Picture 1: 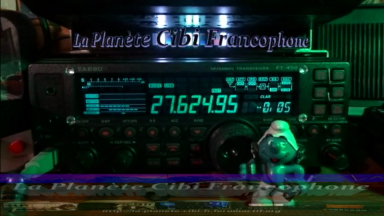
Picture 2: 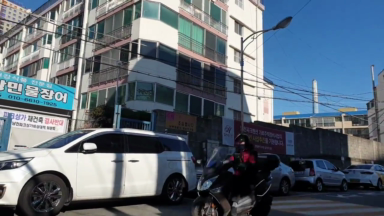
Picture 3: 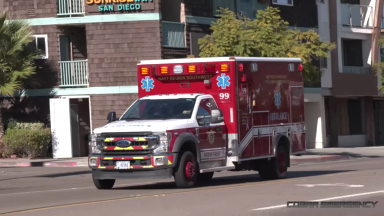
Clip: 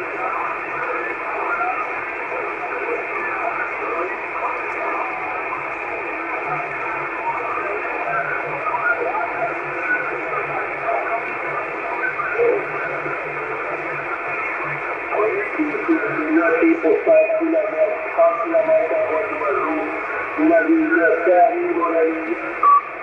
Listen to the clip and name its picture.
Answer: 1